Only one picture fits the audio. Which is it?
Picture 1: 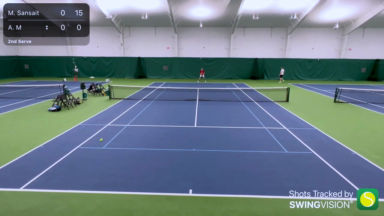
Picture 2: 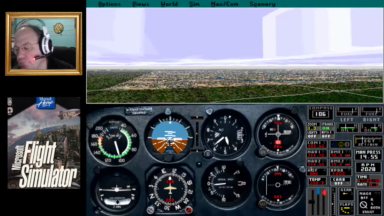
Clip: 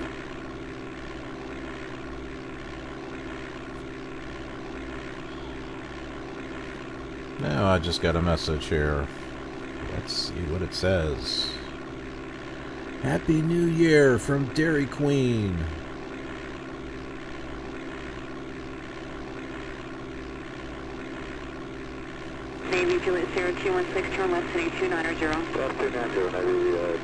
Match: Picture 2